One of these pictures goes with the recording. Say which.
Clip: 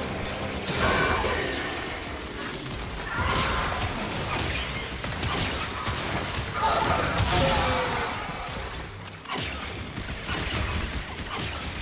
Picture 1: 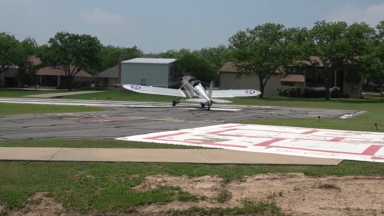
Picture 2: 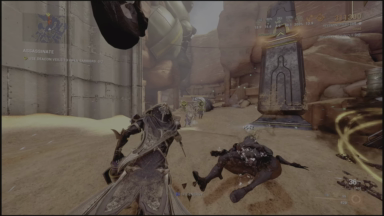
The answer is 2